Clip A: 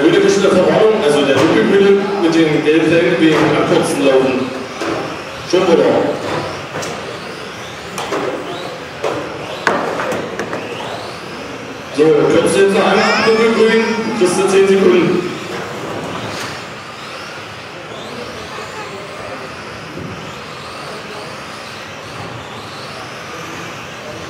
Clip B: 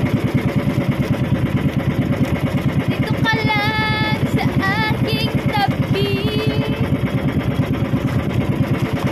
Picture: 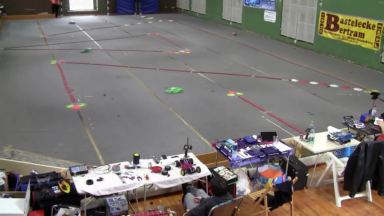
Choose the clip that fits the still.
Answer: A